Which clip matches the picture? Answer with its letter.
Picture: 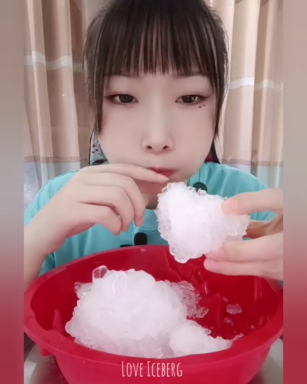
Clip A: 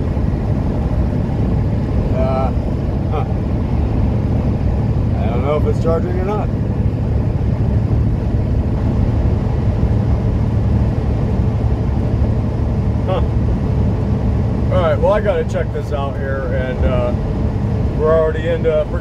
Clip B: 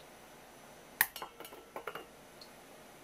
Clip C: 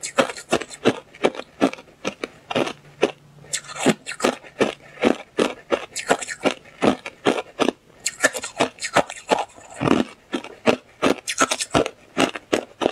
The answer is C